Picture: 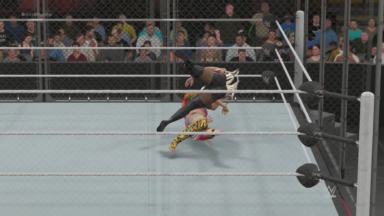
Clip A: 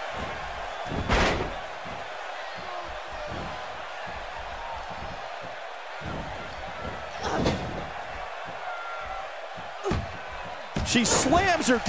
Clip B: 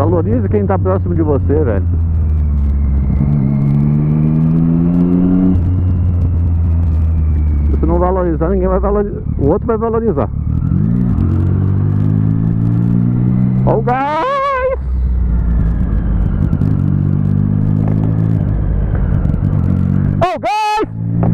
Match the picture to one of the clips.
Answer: A